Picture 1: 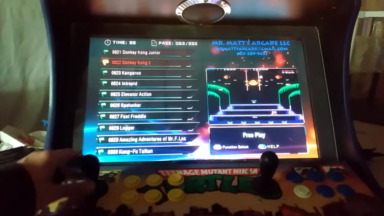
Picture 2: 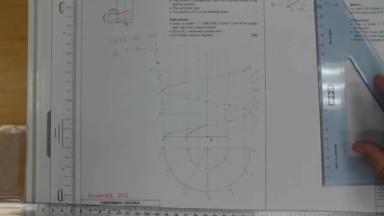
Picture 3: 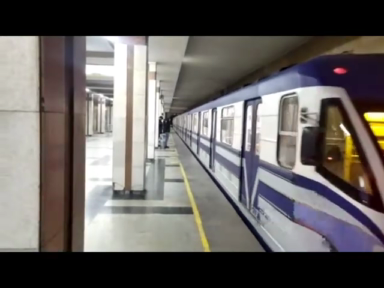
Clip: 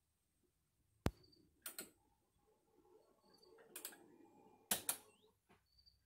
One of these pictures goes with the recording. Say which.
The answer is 1